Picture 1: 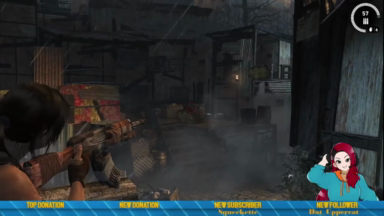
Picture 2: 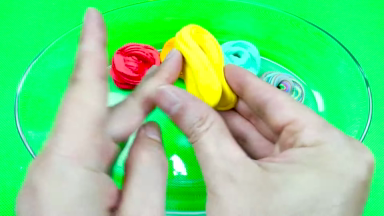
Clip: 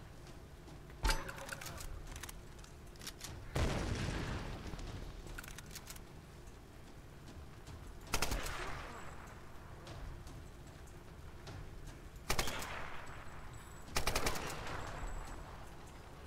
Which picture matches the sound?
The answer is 1